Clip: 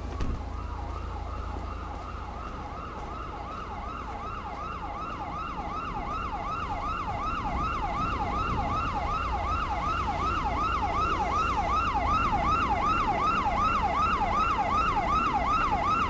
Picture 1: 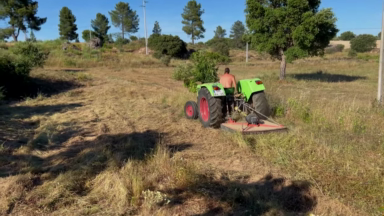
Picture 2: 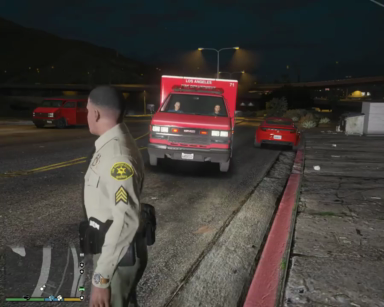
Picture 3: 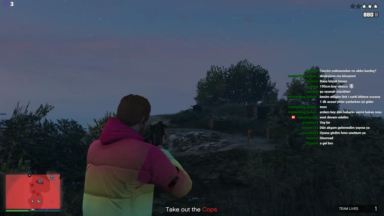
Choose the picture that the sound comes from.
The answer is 2